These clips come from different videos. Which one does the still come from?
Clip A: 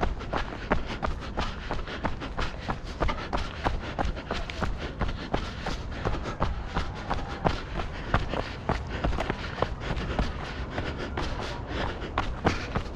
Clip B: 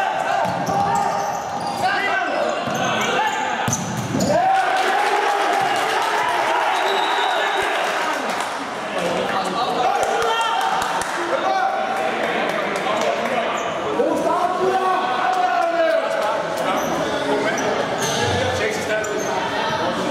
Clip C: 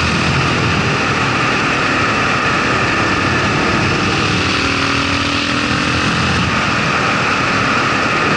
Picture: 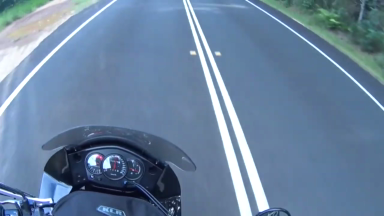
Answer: C